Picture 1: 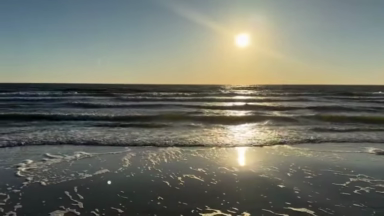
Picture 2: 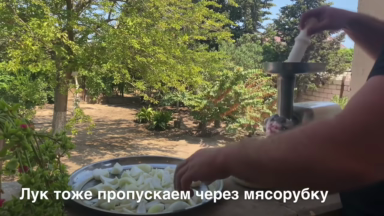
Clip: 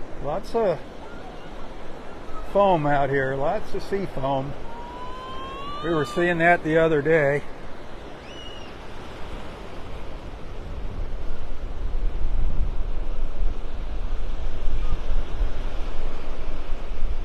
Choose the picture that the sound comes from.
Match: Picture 1